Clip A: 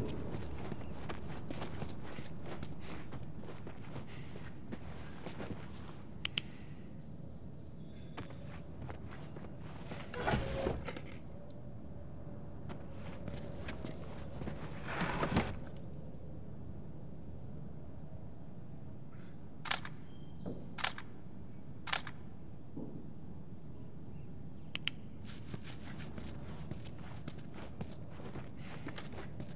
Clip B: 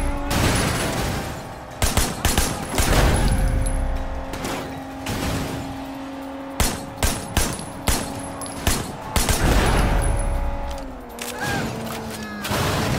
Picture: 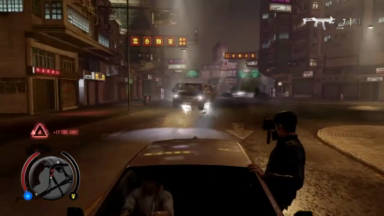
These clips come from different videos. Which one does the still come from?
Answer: B